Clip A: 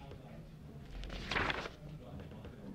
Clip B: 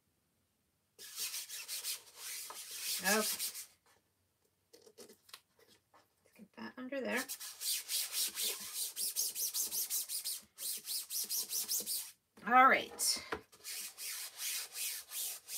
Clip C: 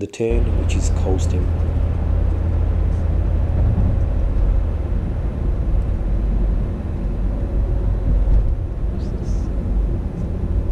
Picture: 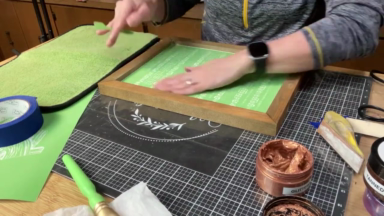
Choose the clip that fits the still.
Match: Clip B